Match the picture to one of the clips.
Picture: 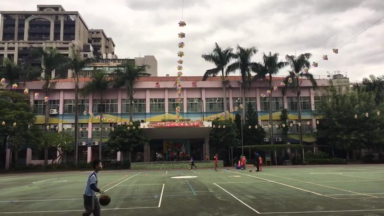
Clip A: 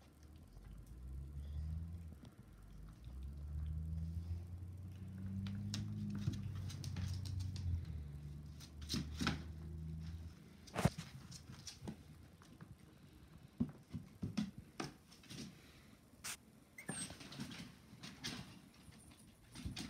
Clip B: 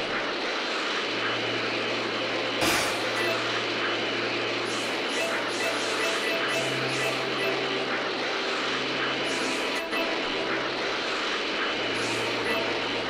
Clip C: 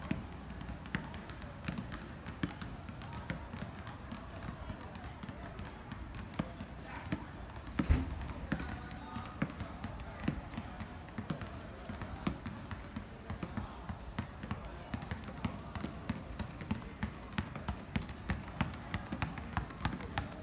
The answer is C